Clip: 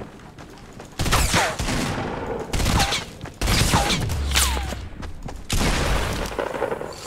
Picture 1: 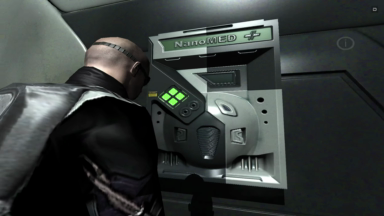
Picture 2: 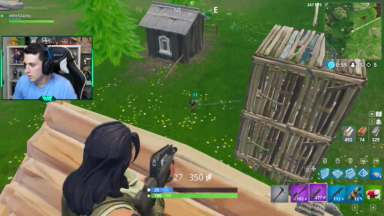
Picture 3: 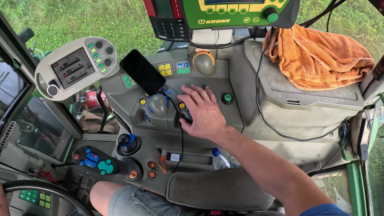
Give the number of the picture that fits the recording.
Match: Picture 2